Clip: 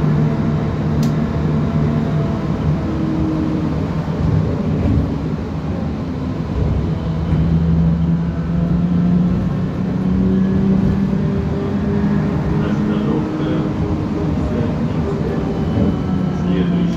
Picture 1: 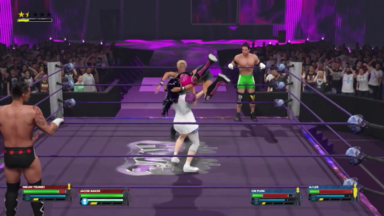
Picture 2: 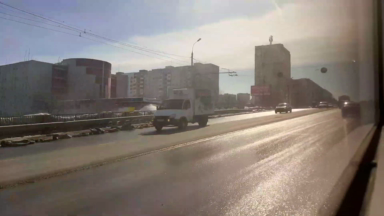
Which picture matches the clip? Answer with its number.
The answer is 2